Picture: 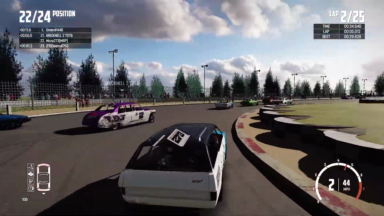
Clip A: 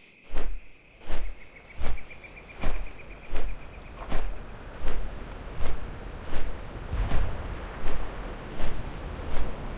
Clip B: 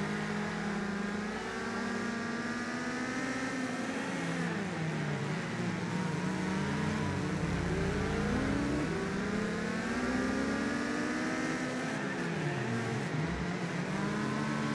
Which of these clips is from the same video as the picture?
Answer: B